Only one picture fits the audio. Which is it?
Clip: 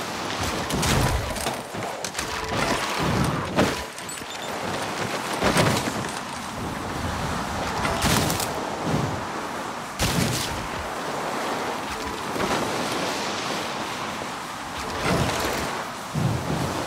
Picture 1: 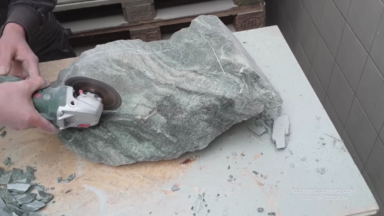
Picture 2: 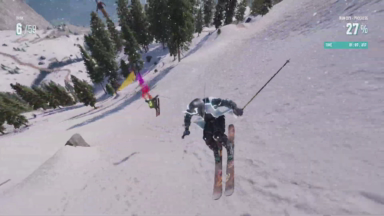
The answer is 2